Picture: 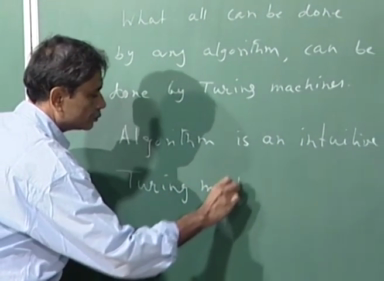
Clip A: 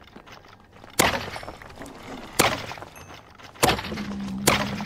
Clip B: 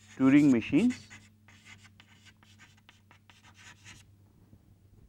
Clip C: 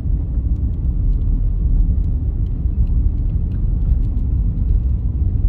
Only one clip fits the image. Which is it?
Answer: B